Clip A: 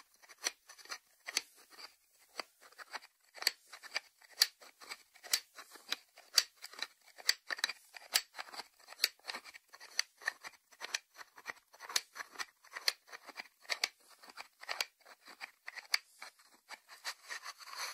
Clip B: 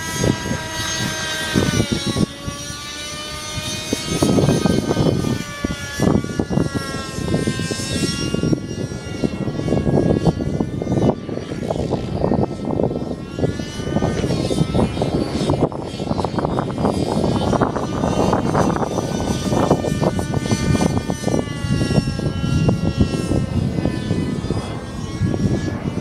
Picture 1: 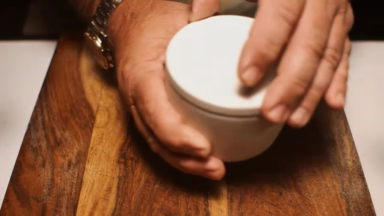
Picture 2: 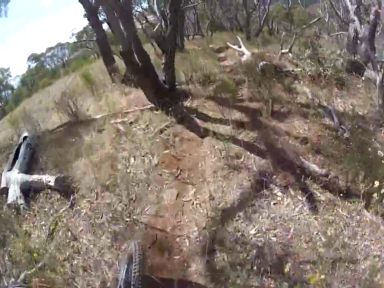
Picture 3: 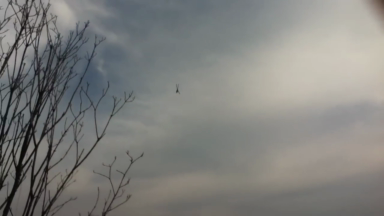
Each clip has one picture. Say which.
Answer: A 1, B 3